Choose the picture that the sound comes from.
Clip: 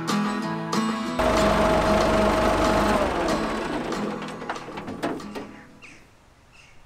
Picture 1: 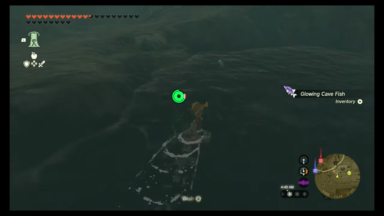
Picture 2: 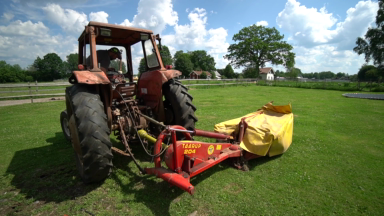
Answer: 2